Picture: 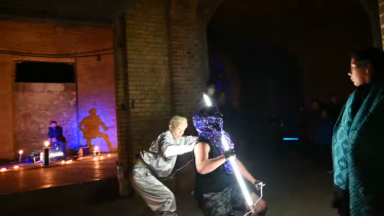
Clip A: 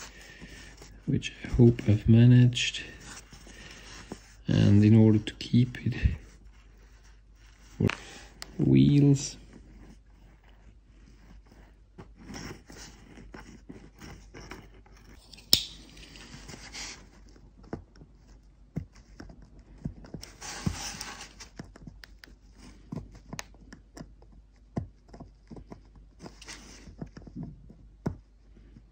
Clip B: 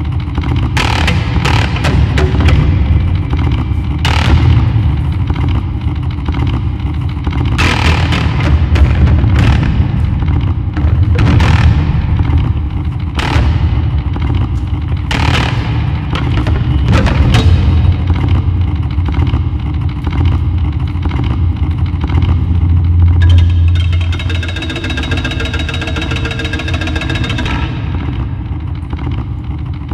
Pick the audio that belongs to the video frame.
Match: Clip B